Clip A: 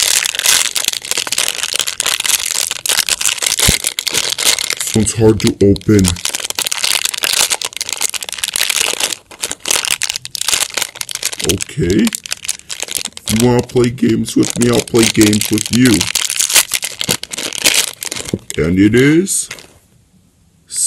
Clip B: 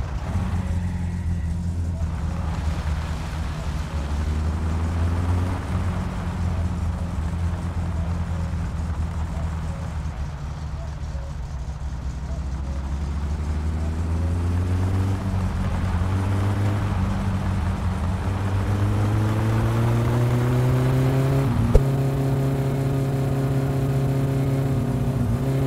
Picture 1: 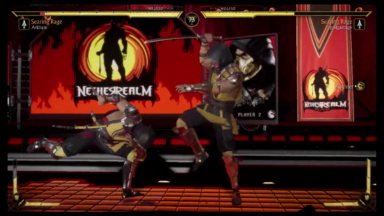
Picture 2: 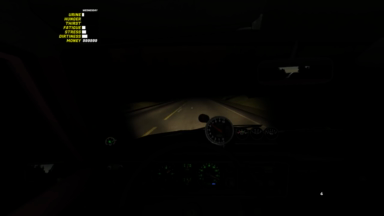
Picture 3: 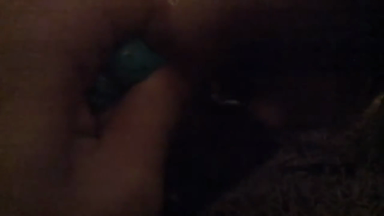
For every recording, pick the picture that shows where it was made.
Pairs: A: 3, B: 2